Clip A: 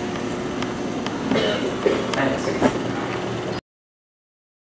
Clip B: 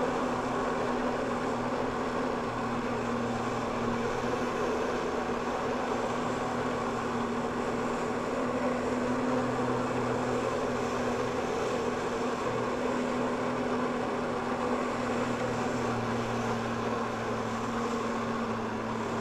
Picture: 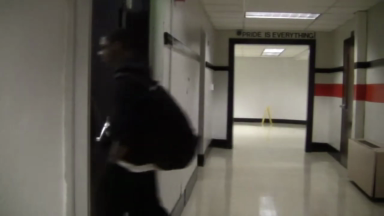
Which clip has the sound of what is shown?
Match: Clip A